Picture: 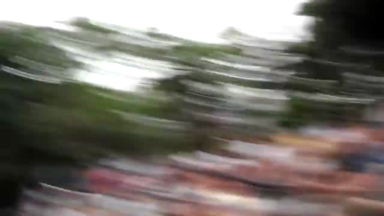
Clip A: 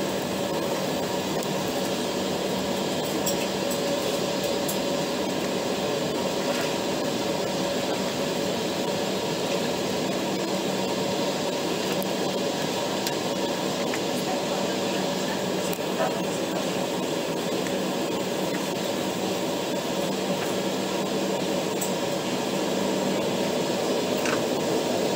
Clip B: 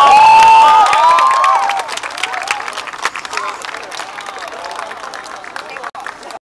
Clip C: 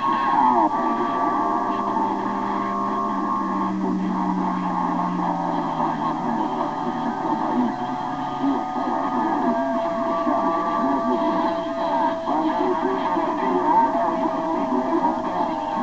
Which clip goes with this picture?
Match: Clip B